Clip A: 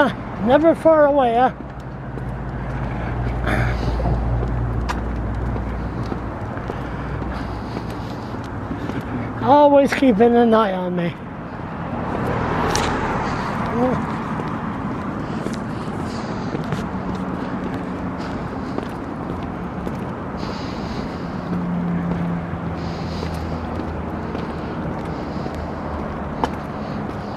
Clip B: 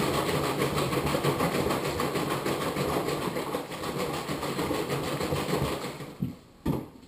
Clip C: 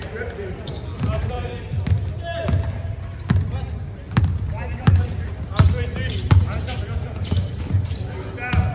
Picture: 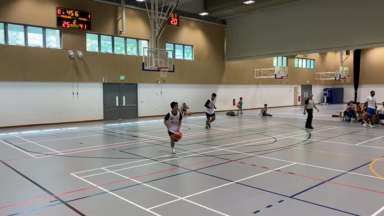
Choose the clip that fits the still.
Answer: C